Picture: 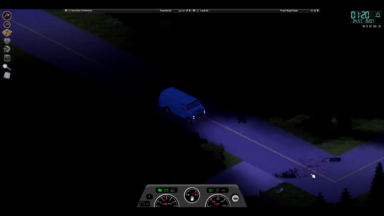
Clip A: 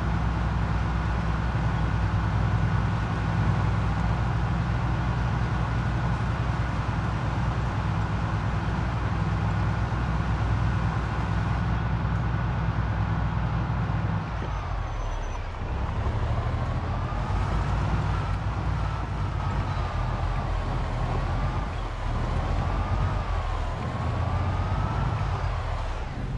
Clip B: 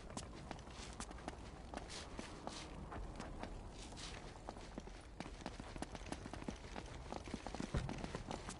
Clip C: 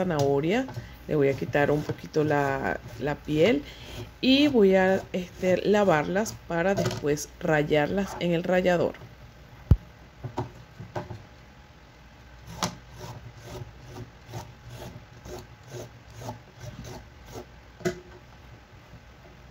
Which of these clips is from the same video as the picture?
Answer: A